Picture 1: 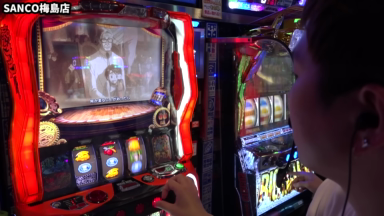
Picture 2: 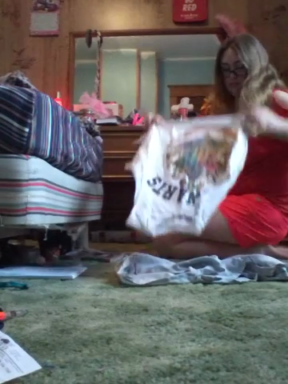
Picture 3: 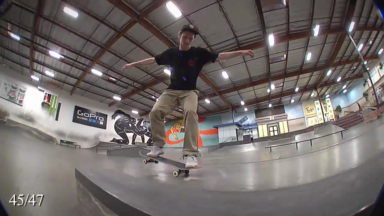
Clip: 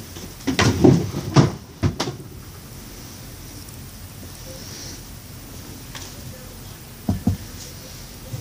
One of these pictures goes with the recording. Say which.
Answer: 2